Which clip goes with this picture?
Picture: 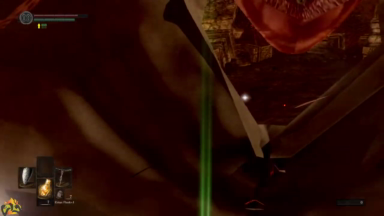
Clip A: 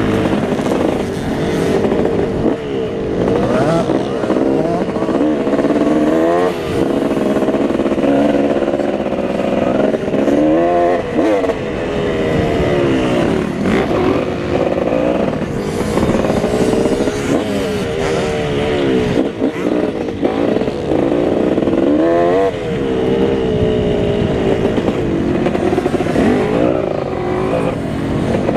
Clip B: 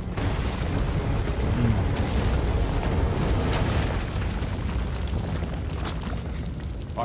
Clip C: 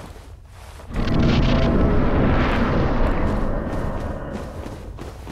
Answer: C